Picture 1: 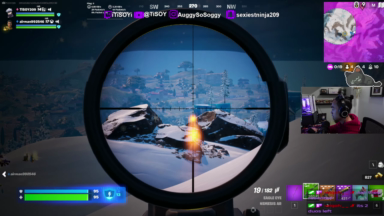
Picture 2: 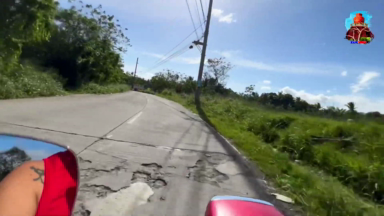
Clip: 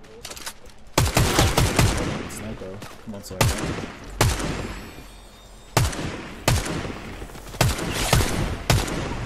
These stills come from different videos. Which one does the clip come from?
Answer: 1